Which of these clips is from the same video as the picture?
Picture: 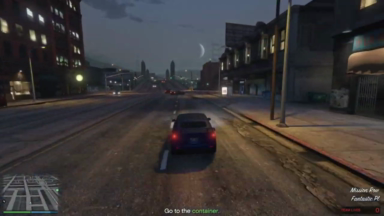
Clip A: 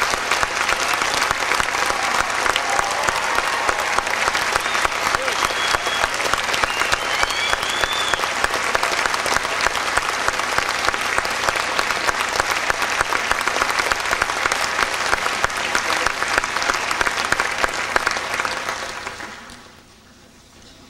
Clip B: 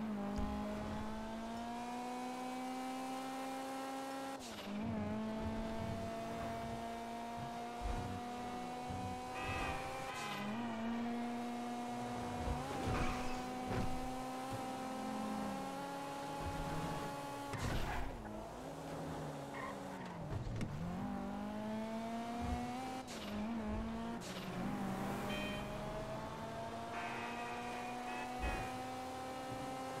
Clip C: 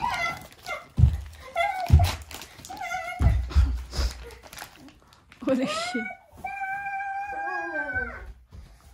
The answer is B